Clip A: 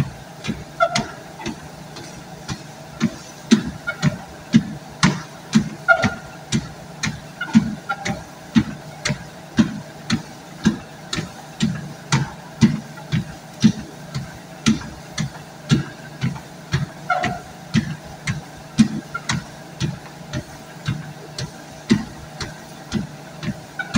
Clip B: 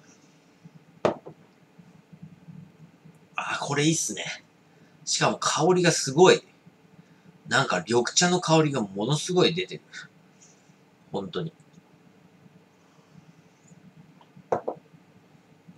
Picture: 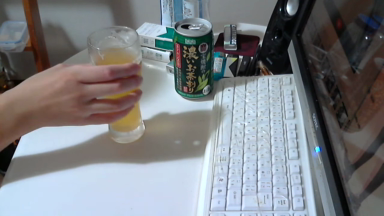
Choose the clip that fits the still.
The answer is B